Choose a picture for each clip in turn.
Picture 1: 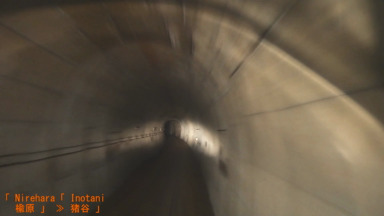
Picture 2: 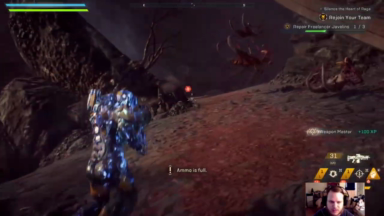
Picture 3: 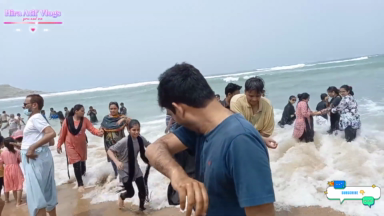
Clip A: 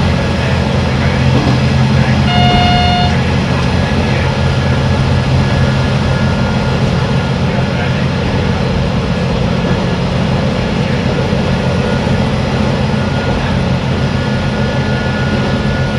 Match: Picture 1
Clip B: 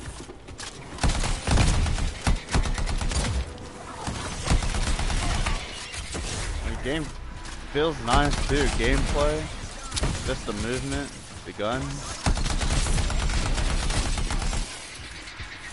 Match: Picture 2